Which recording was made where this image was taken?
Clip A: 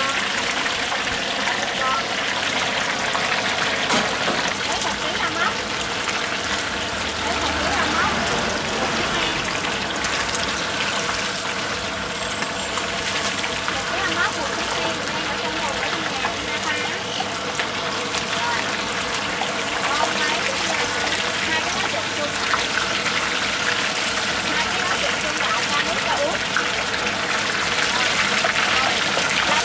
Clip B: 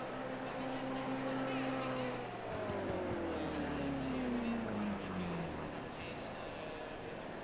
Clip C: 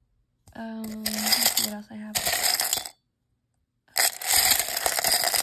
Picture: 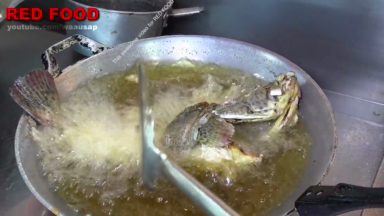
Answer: A